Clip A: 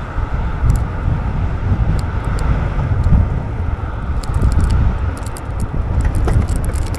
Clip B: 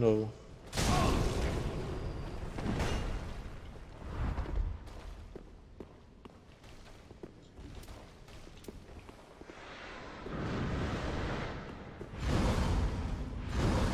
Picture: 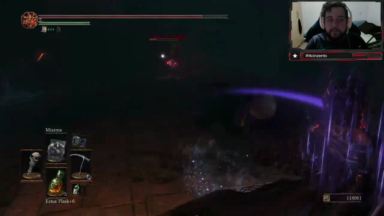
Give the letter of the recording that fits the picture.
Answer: B